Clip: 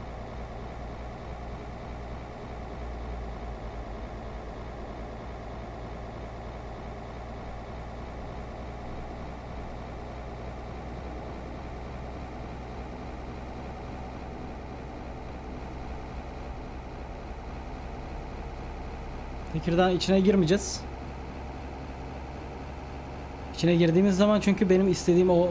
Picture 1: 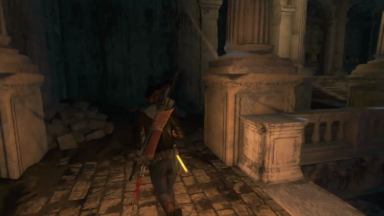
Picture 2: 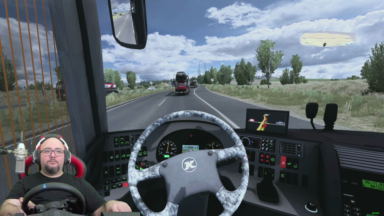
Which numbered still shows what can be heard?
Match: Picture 2